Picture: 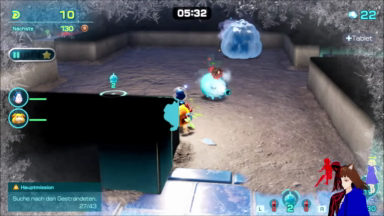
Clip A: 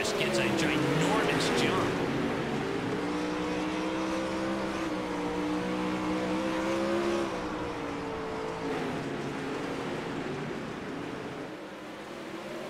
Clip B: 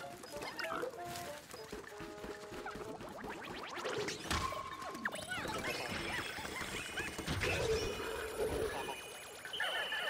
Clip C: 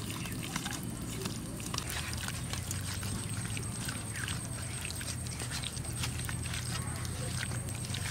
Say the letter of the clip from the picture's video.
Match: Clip B